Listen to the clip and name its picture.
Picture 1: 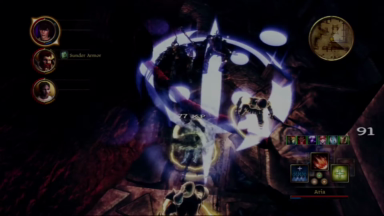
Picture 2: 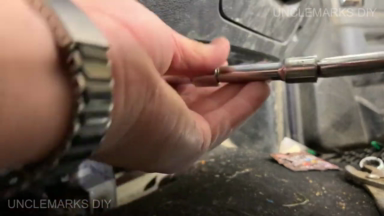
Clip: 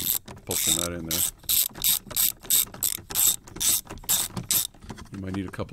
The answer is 2